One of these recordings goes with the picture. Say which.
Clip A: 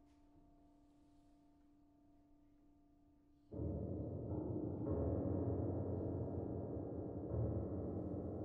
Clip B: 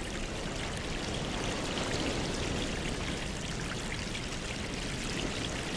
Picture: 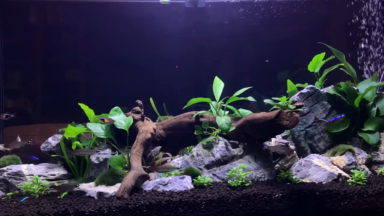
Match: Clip B